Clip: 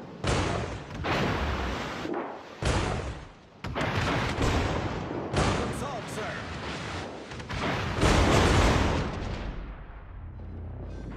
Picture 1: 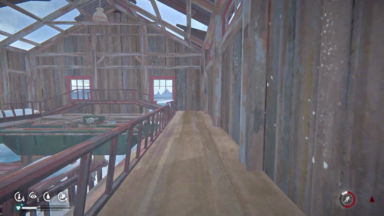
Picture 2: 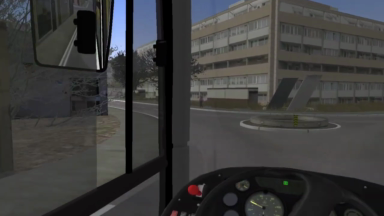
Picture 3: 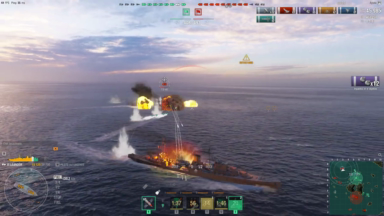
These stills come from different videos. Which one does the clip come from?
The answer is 3